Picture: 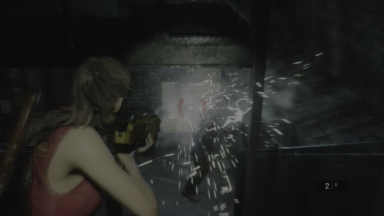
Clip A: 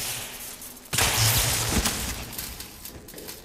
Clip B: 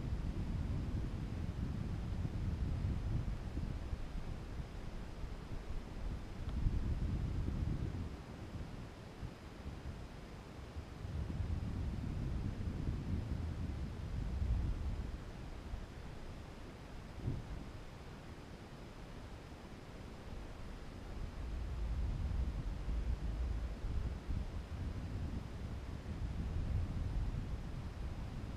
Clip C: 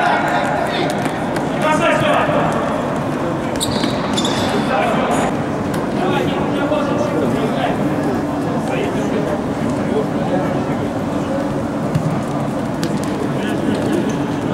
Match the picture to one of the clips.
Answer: A